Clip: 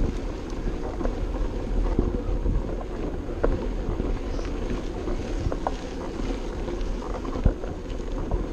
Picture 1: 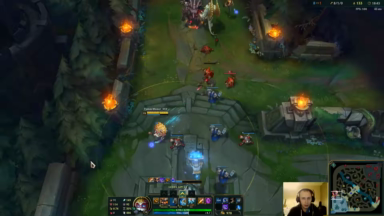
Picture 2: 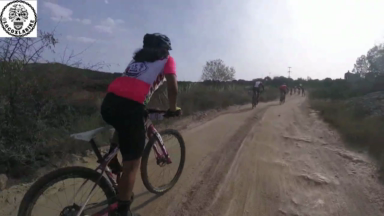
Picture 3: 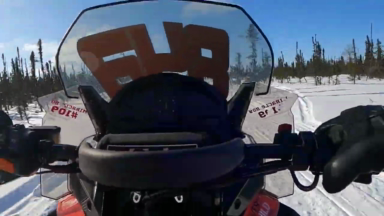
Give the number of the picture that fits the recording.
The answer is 2